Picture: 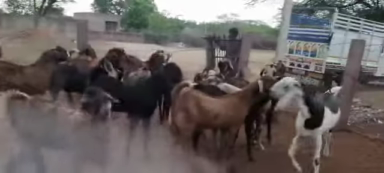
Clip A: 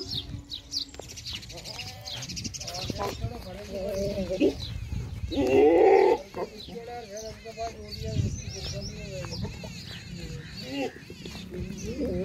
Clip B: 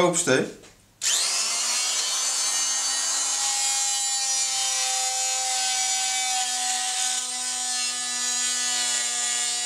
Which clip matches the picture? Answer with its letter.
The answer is A